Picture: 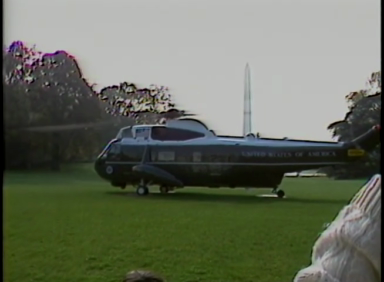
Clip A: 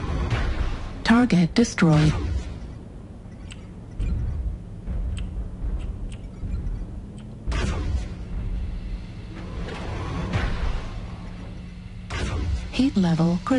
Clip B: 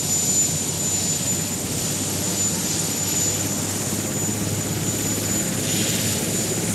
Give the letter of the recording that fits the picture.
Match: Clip B